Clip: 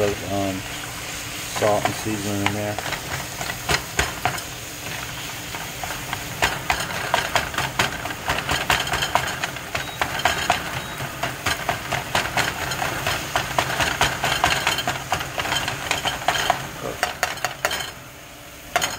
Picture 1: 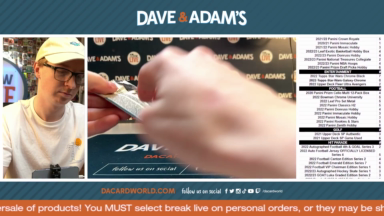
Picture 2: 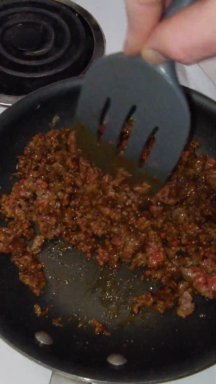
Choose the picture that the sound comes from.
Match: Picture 2